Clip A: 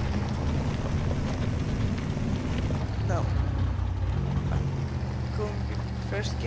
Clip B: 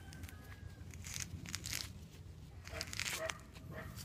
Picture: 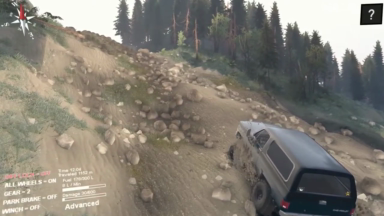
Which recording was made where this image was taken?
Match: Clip A